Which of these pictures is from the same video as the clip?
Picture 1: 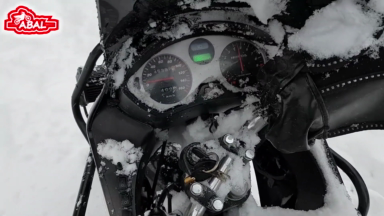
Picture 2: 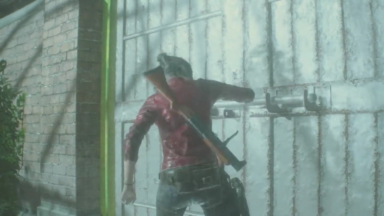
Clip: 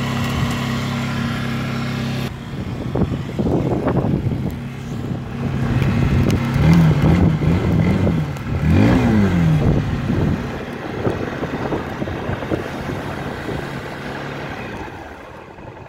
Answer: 1